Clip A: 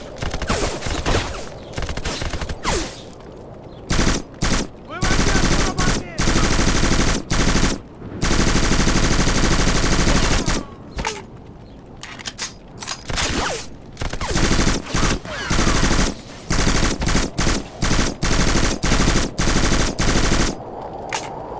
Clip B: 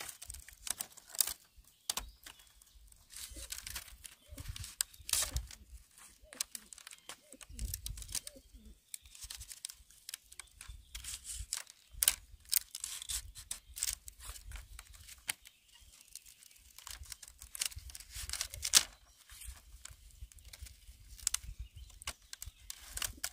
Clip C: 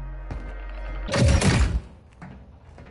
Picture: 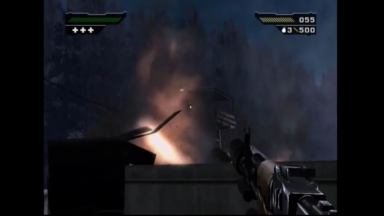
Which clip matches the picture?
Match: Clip A